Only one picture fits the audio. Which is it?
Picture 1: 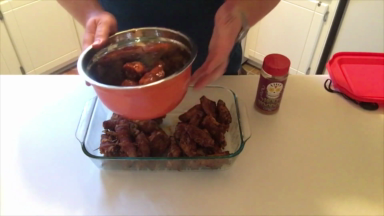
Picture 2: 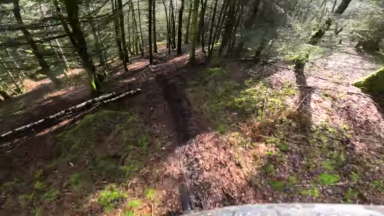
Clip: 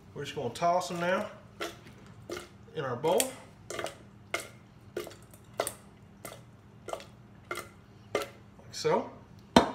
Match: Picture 1